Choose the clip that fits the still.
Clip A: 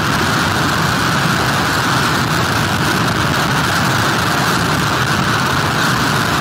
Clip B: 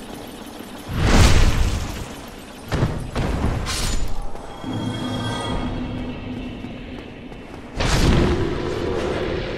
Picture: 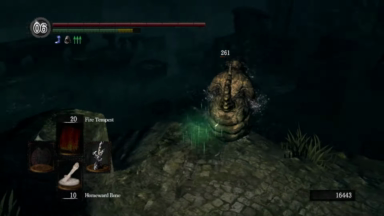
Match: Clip B